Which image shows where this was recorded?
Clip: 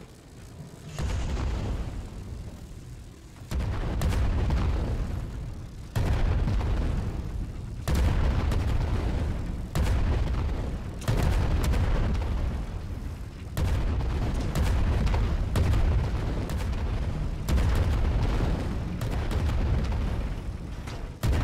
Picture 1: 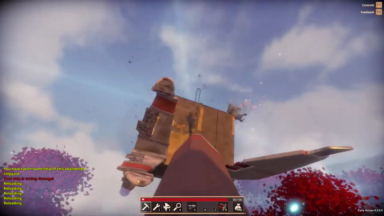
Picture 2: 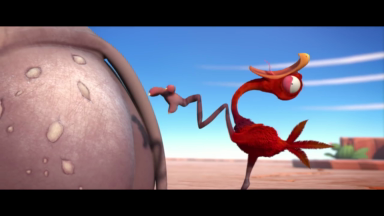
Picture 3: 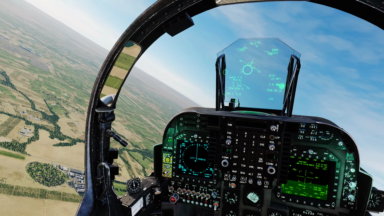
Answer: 1